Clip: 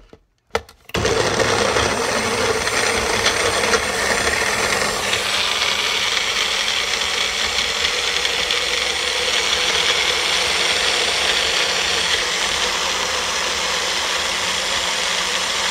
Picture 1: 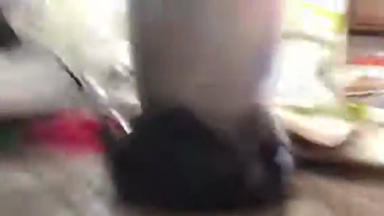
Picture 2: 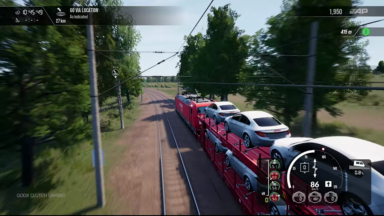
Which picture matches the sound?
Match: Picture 1